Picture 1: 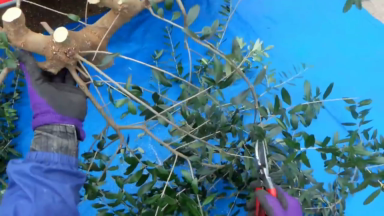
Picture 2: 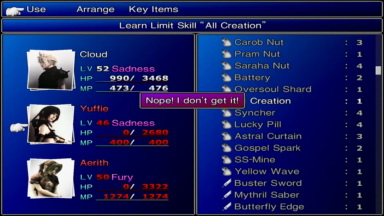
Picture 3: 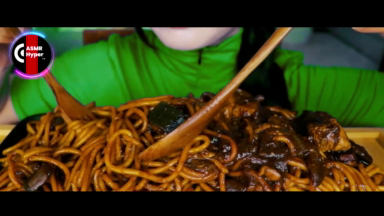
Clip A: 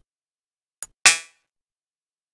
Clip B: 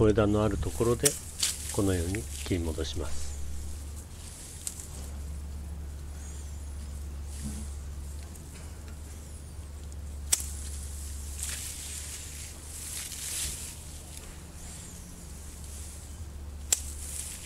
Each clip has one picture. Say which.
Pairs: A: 2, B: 1